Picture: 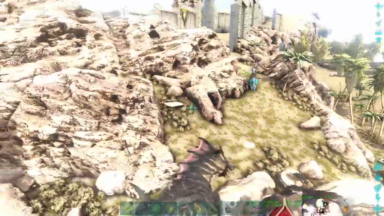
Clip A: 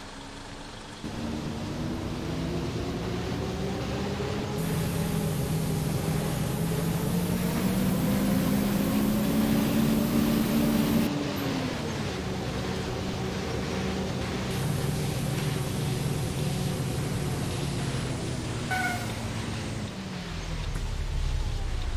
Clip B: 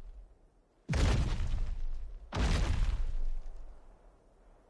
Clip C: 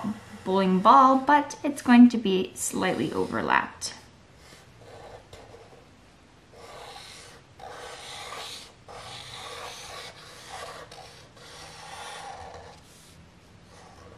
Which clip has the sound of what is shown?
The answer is B